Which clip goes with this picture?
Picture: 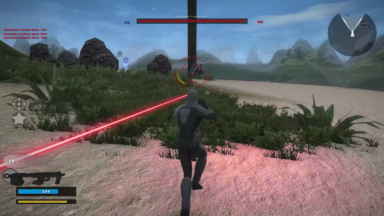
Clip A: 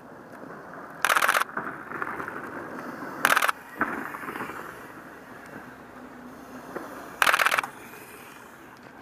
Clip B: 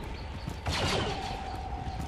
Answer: B